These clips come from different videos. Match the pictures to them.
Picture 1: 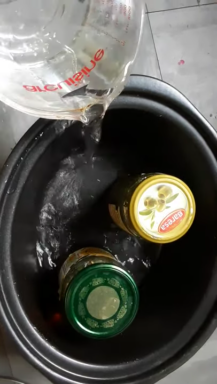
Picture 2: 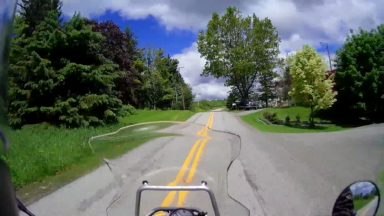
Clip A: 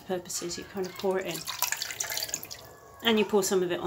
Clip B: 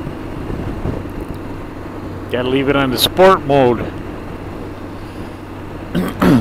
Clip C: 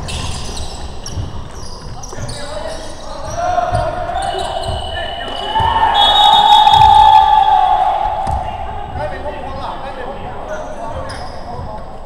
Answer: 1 A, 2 B